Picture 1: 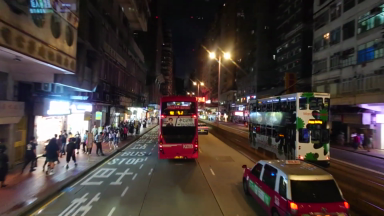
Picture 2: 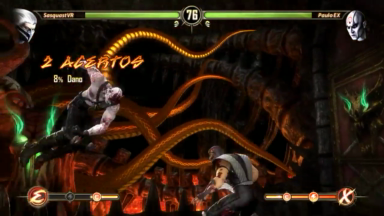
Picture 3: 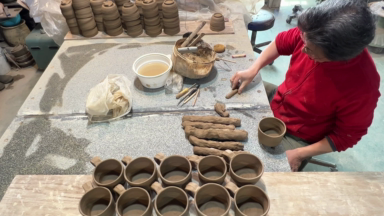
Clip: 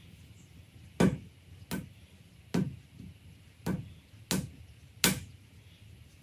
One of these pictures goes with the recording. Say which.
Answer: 3